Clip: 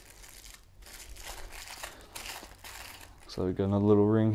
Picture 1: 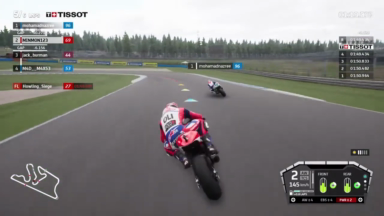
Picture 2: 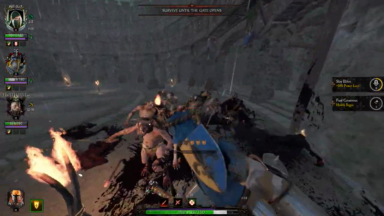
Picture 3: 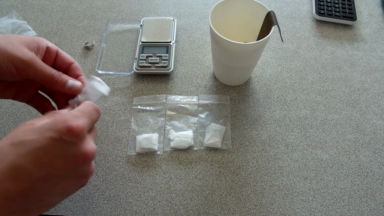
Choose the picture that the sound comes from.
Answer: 3